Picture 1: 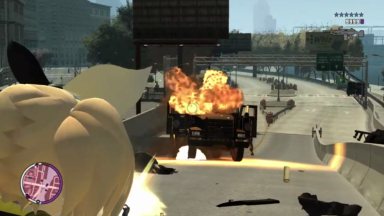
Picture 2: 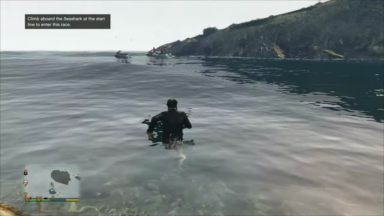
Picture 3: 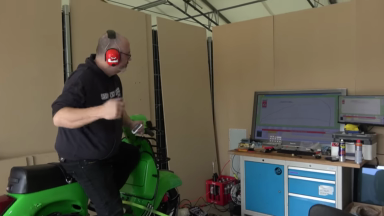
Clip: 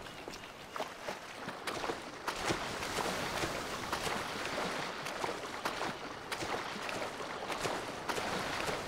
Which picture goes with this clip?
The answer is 2